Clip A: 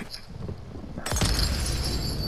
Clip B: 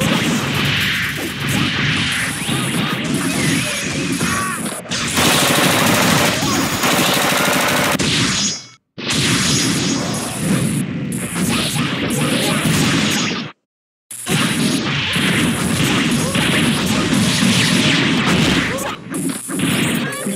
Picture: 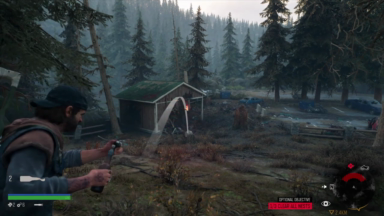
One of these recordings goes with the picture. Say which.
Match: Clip A